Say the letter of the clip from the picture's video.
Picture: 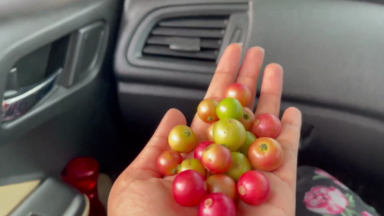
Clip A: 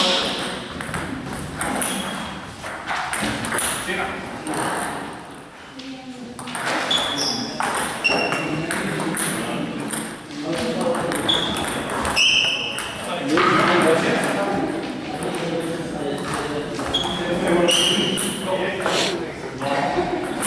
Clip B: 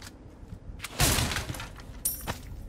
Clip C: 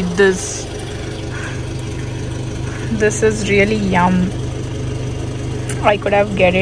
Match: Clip C